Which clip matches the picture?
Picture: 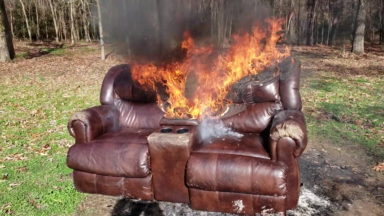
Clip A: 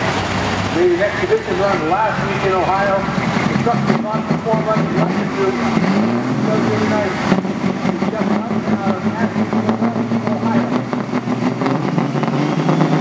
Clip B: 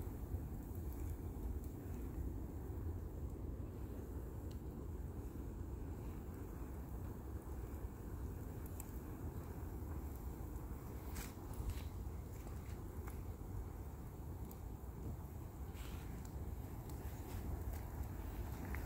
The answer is B